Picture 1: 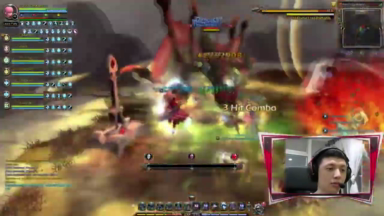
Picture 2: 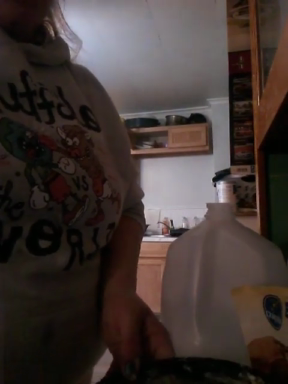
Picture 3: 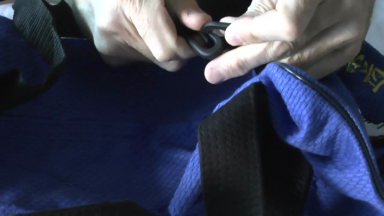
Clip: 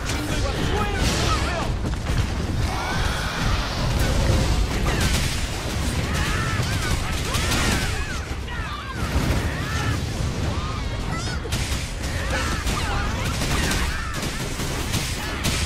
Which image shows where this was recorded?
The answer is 1